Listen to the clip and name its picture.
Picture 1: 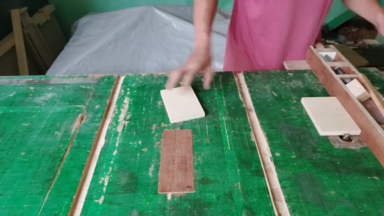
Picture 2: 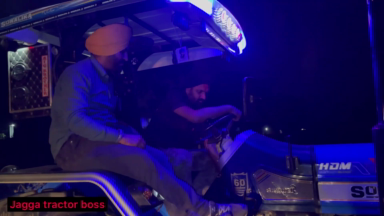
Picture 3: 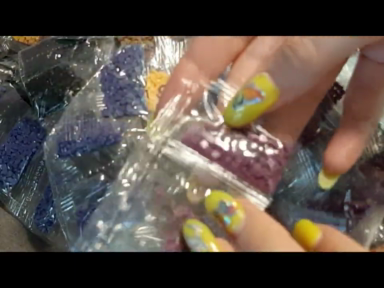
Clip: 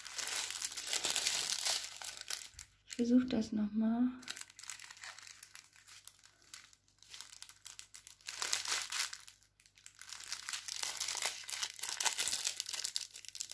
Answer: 3